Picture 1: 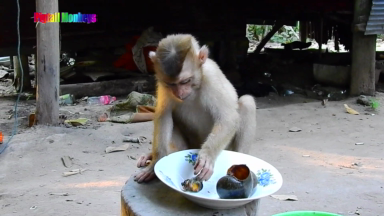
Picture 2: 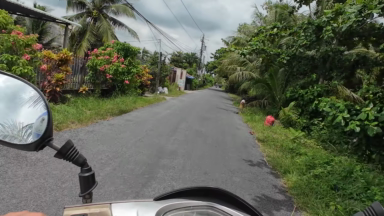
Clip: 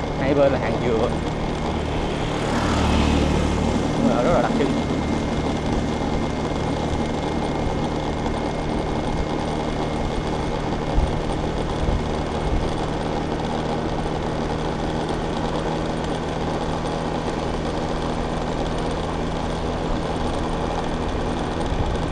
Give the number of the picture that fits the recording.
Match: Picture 2